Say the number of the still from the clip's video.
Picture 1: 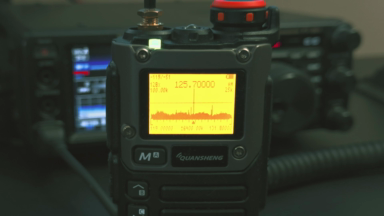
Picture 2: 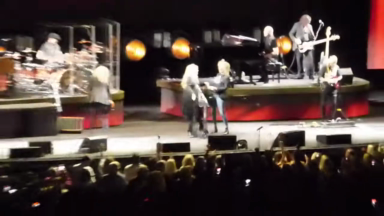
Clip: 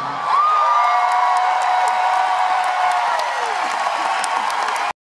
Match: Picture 2